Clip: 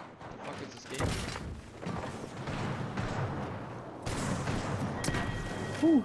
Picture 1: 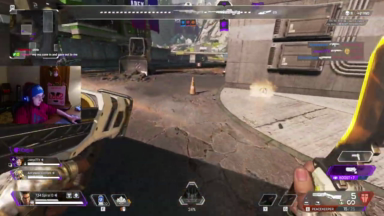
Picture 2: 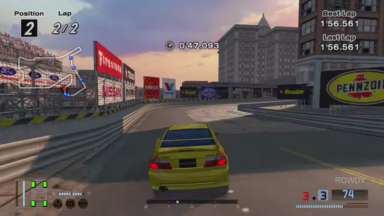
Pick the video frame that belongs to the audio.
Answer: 1